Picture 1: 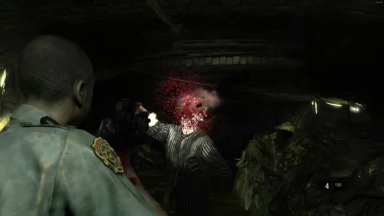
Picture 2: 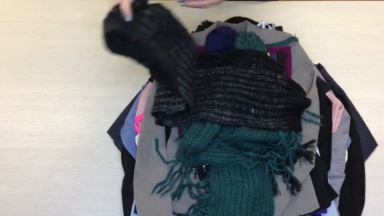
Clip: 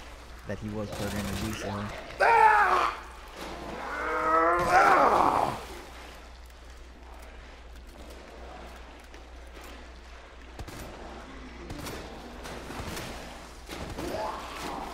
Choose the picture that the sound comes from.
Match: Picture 1